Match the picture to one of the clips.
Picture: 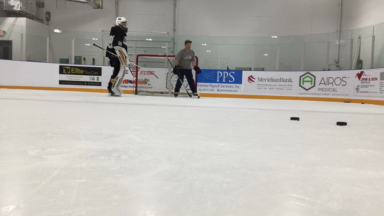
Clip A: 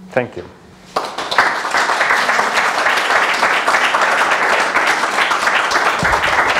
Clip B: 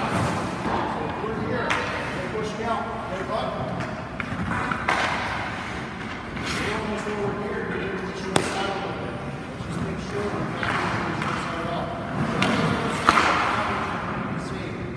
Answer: B